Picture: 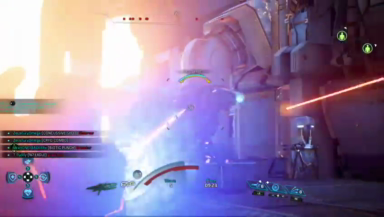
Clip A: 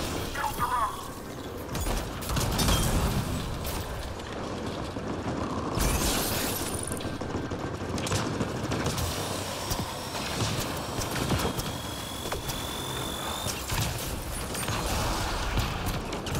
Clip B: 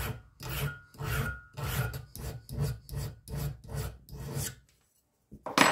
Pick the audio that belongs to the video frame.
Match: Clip A